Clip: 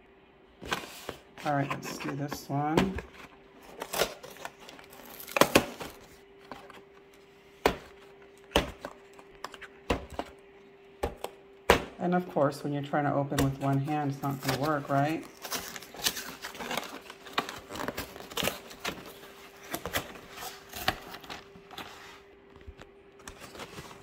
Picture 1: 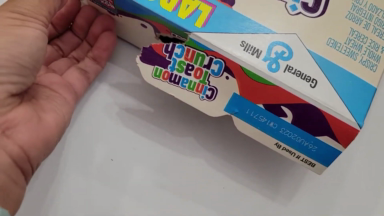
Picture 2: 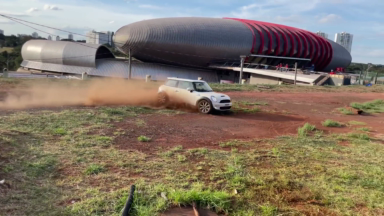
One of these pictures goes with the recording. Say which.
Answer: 1